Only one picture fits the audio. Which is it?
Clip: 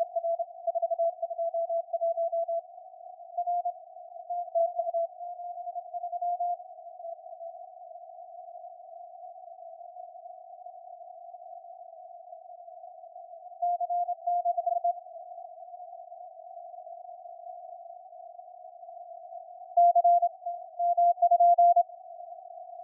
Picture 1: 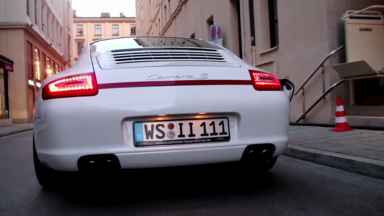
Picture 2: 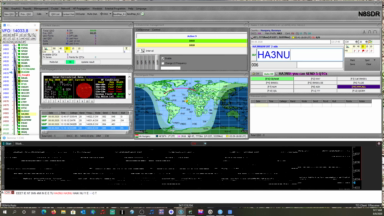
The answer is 2